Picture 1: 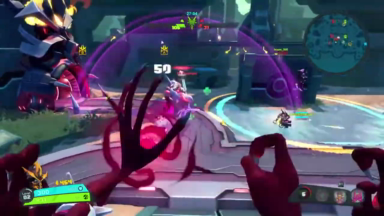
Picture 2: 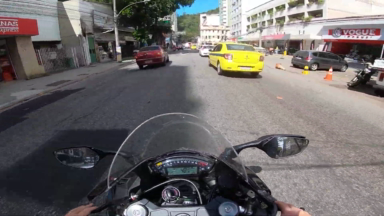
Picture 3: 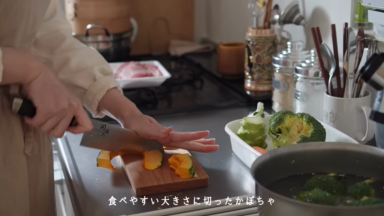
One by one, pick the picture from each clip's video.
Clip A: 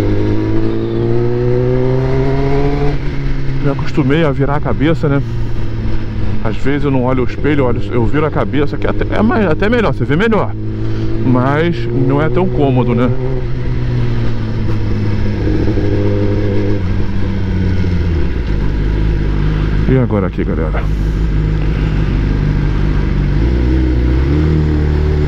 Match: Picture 2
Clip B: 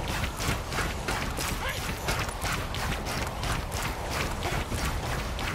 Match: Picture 1